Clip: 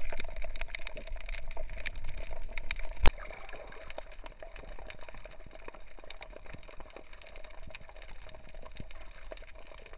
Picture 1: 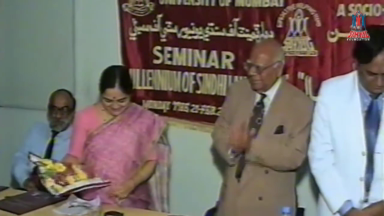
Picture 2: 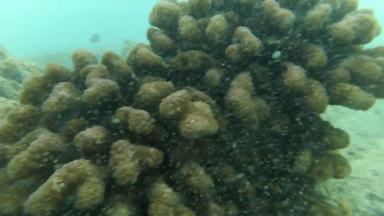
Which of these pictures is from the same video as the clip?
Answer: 2